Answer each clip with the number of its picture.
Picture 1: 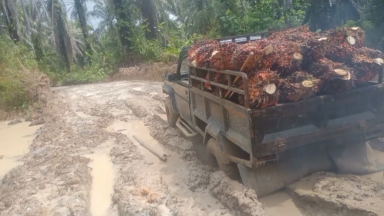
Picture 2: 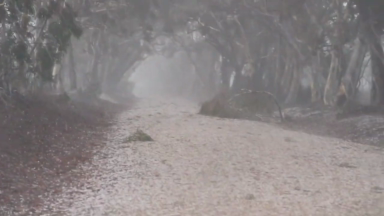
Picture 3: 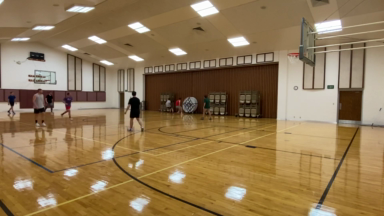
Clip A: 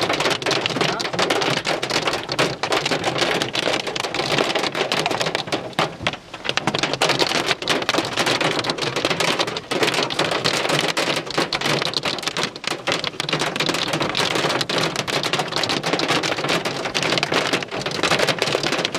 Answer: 2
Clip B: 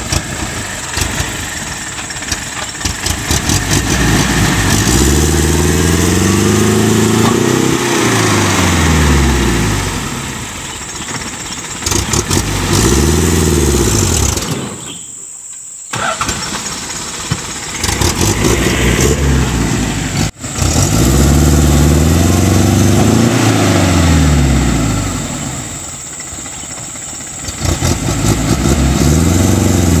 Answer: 1